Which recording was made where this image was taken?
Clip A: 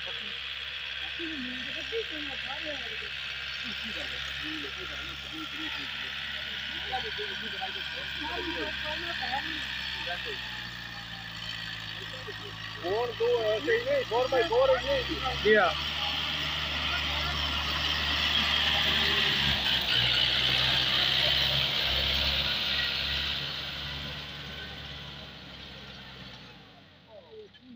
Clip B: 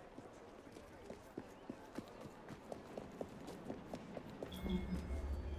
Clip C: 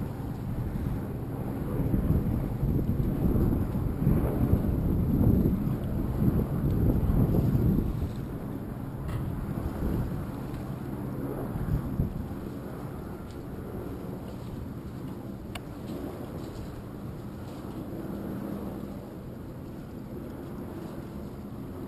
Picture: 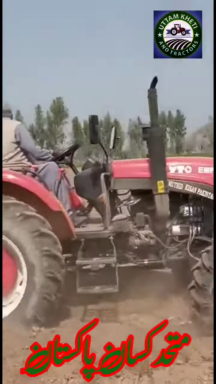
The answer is A